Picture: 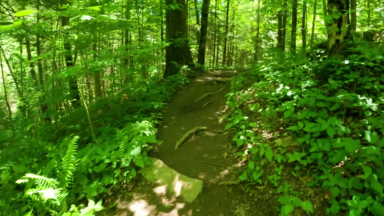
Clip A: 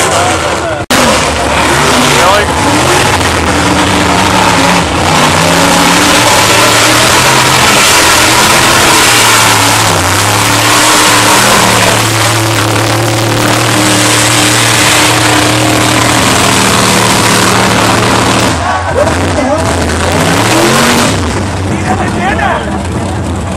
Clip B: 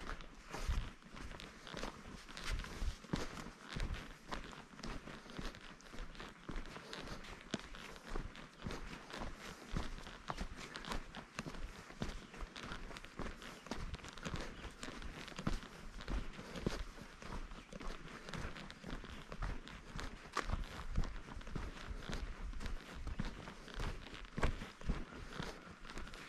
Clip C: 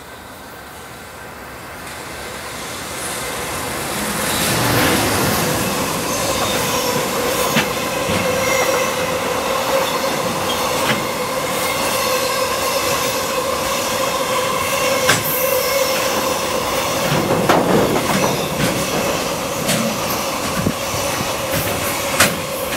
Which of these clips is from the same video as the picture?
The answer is B